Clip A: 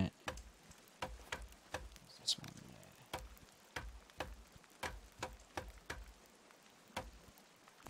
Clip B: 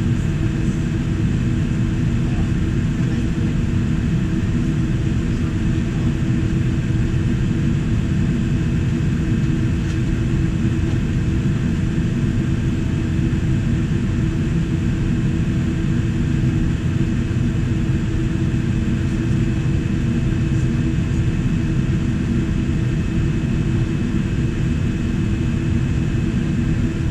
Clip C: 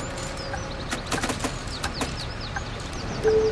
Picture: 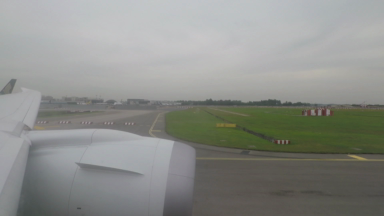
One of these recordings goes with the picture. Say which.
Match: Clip B